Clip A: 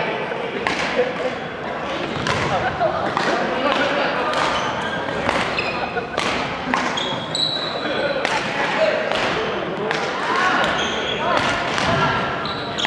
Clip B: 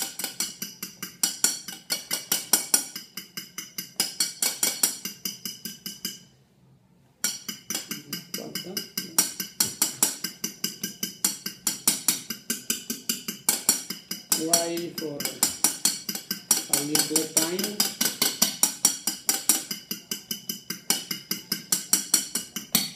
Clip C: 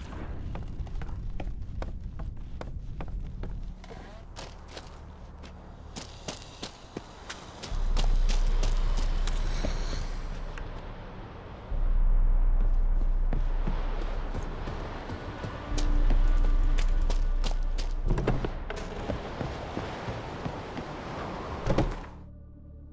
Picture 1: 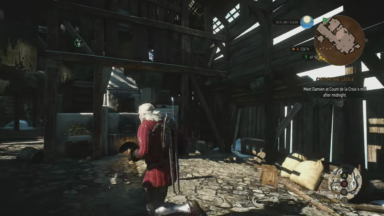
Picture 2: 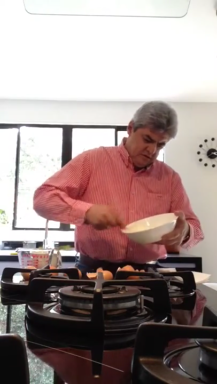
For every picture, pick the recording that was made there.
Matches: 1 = C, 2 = B